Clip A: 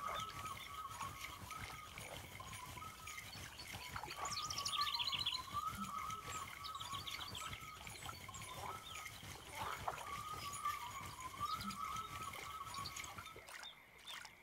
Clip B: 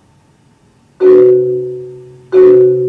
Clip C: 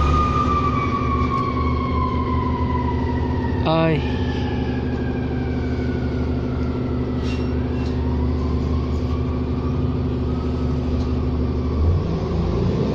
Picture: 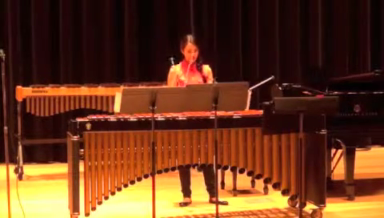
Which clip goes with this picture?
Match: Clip B